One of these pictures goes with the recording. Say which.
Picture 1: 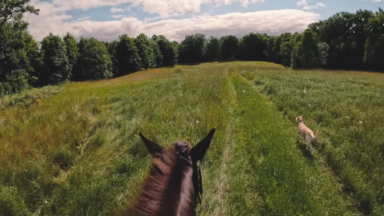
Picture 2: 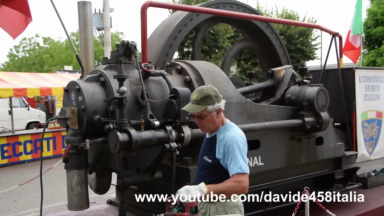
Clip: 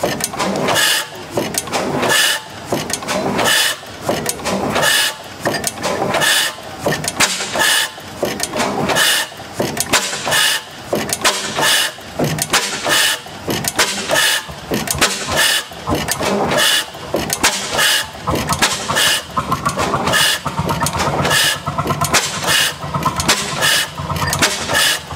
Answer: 2